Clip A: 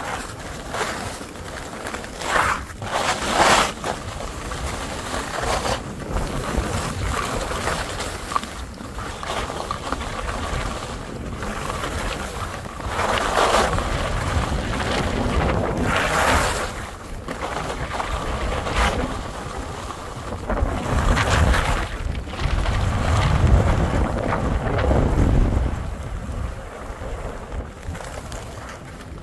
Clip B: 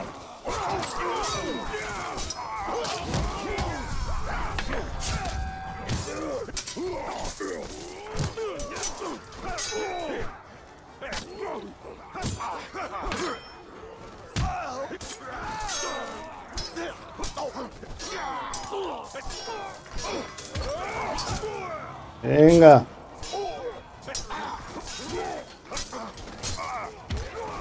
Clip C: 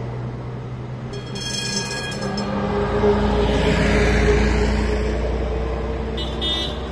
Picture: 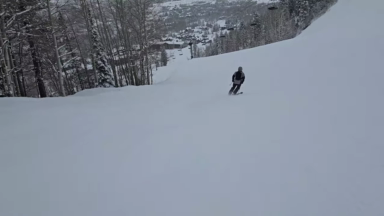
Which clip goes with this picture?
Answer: A